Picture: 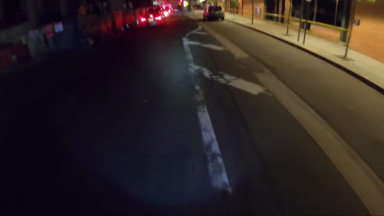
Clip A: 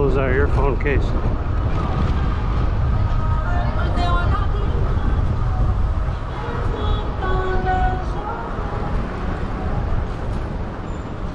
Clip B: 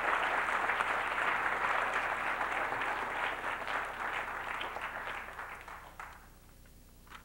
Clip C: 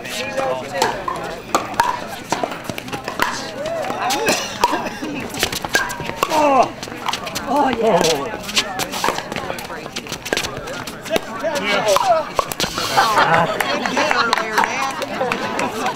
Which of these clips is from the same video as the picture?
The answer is A